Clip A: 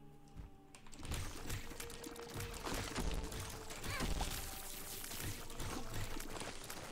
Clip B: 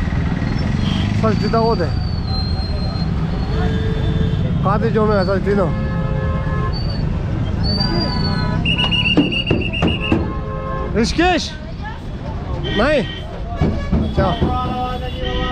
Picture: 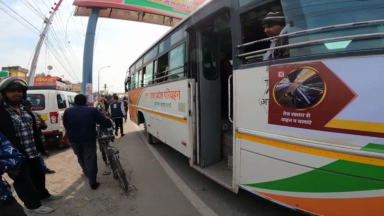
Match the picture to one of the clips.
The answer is B